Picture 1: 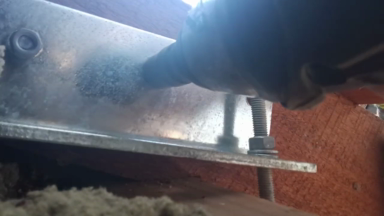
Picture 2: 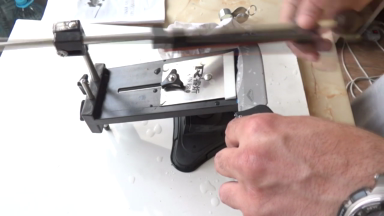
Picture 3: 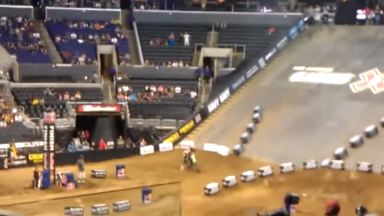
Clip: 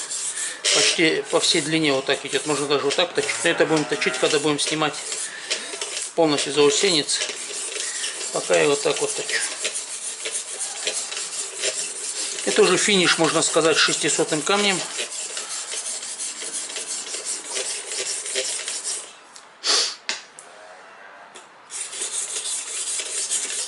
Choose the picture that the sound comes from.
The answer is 2